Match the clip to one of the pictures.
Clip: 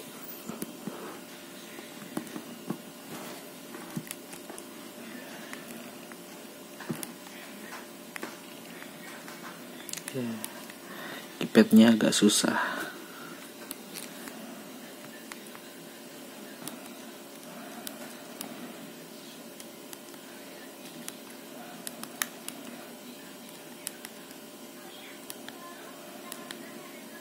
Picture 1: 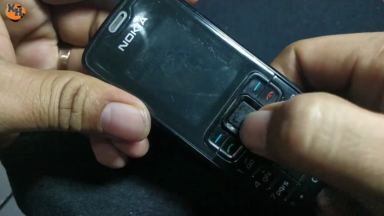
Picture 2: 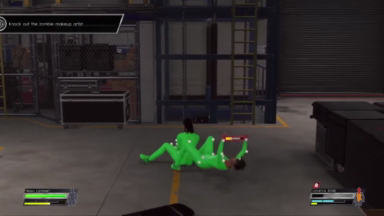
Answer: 1